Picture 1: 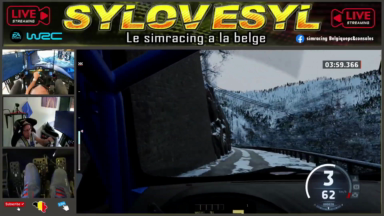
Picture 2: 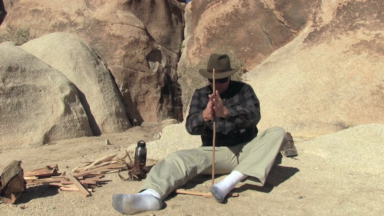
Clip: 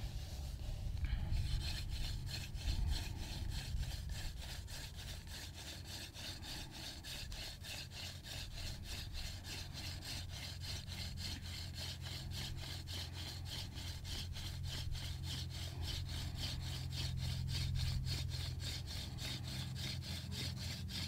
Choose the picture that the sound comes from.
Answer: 2